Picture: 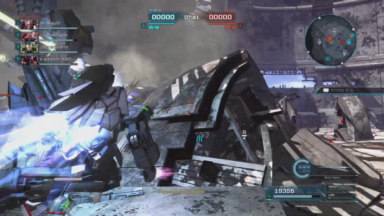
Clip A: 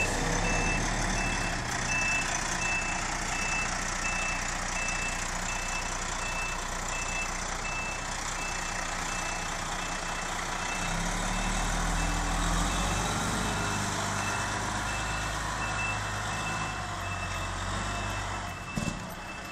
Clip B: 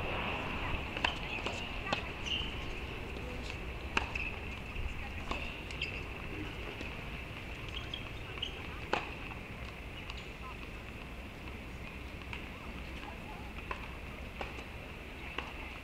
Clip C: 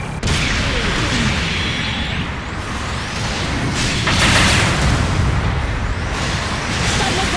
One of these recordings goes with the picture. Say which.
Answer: C